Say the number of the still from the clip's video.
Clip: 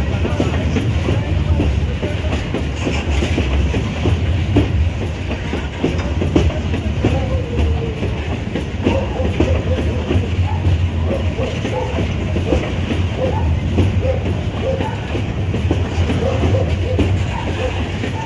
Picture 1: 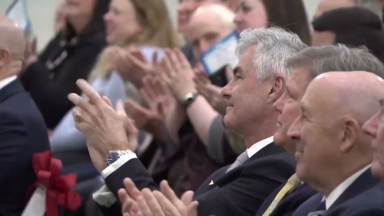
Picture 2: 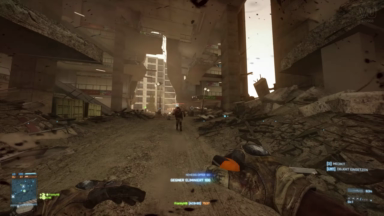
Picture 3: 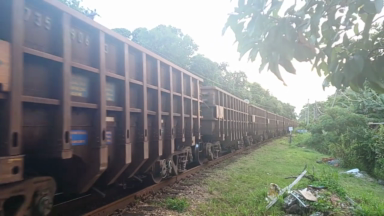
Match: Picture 3